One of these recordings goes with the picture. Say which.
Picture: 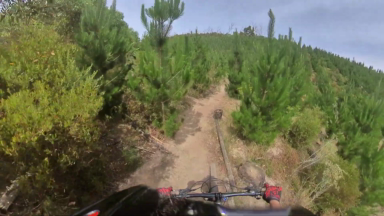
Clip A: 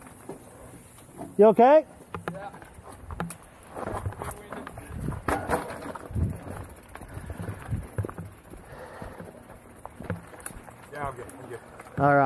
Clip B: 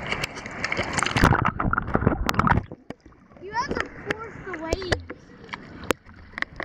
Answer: A